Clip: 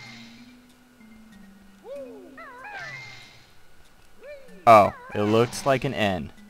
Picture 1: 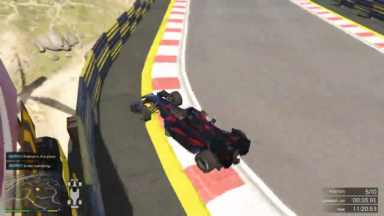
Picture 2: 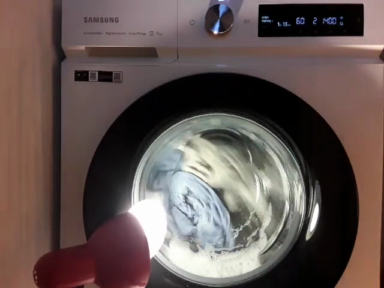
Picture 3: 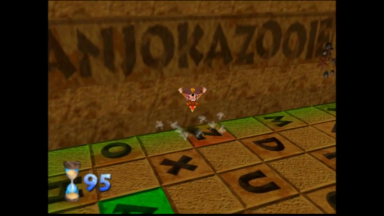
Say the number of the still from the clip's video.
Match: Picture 3